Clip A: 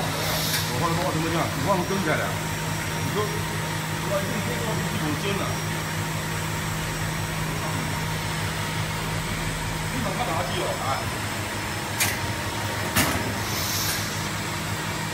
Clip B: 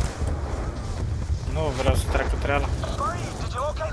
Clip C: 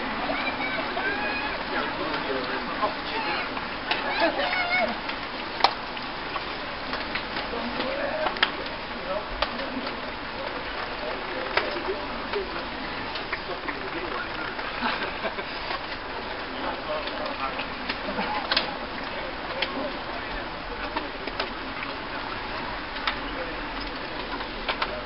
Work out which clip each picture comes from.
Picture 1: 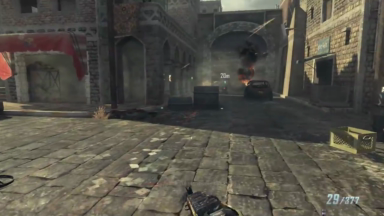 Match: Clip B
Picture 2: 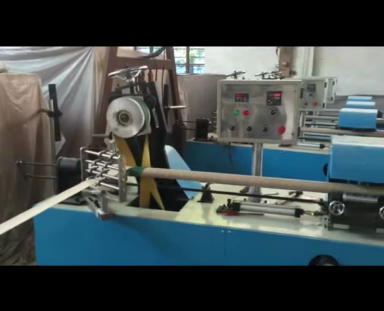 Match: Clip A